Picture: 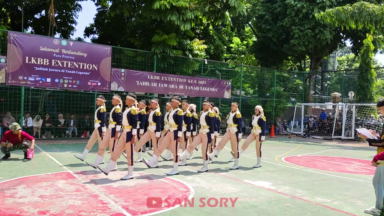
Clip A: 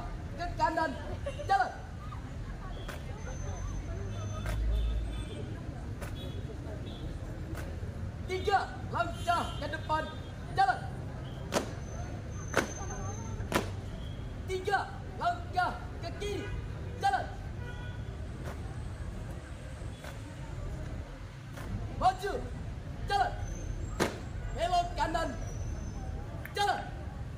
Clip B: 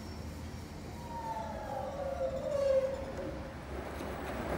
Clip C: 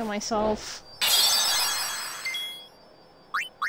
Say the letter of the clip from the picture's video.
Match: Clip A